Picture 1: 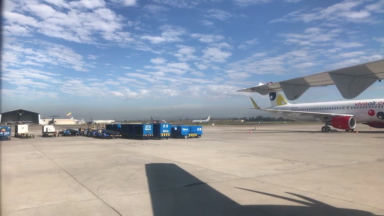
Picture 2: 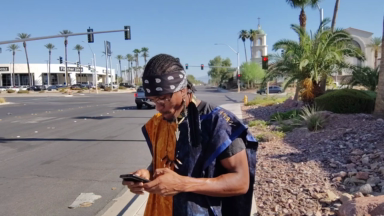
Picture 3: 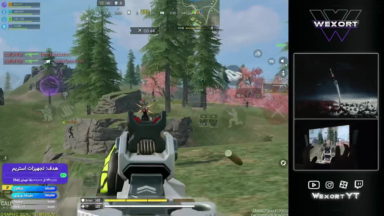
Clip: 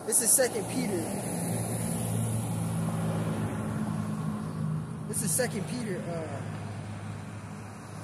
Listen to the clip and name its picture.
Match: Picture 2